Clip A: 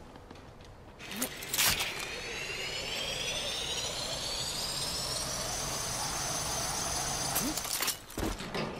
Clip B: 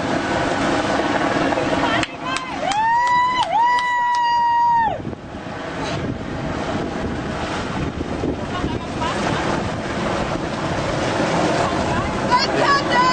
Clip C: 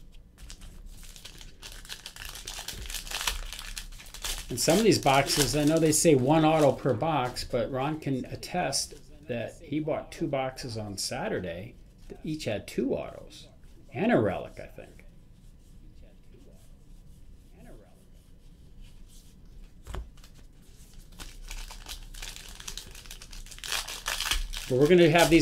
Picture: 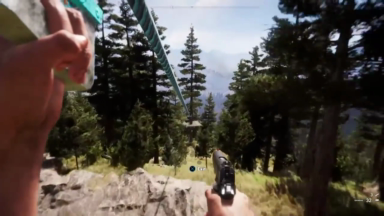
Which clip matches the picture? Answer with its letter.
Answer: A